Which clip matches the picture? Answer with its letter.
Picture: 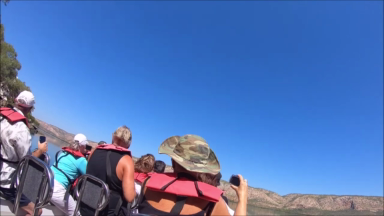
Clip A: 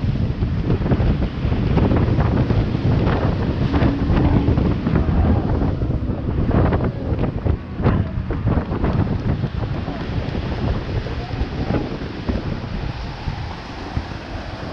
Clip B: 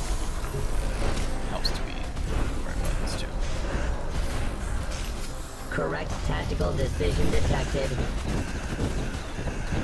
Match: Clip A